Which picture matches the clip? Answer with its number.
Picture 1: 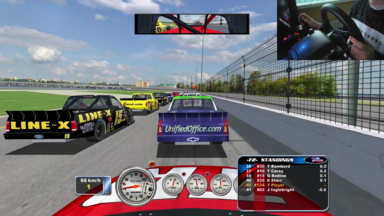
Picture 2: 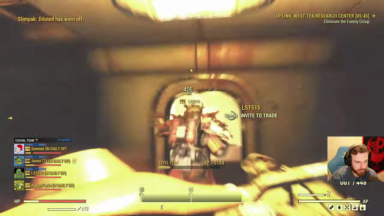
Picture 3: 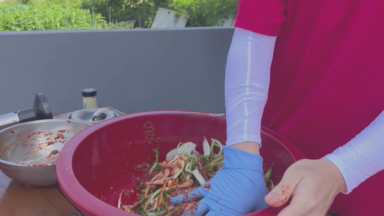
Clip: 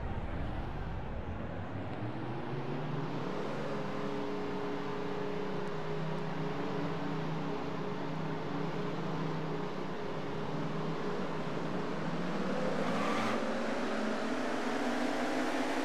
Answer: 1